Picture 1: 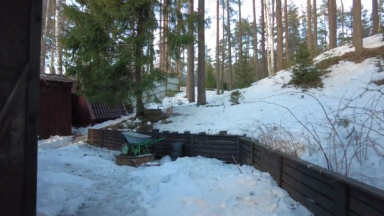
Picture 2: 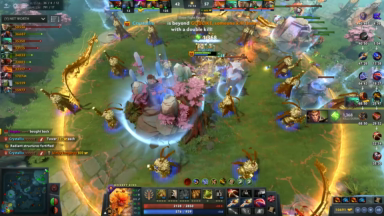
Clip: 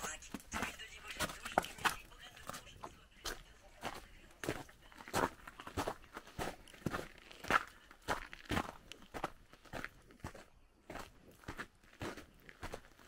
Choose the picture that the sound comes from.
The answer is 1